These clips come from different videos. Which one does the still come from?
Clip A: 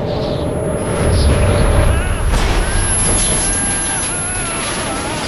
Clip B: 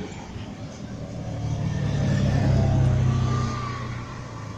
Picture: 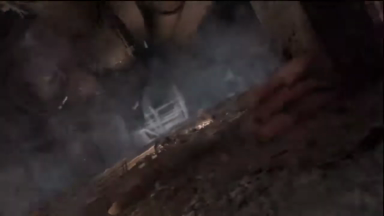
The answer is A